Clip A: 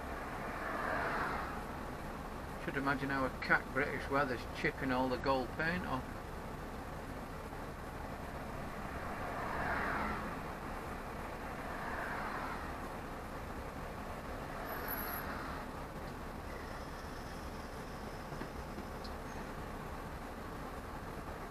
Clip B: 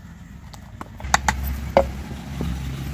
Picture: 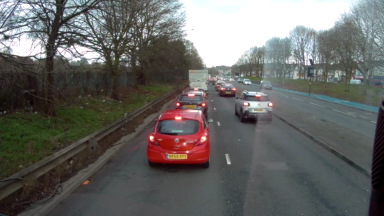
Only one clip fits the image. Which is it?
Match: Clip A